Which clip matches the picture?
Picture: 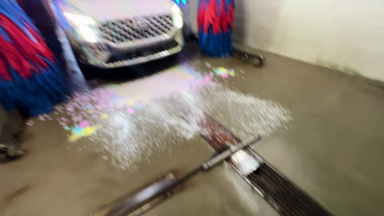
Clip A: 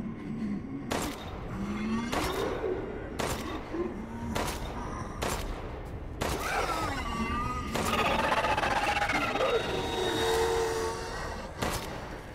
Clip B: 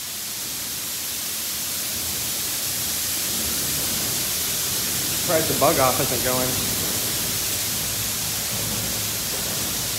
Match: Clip B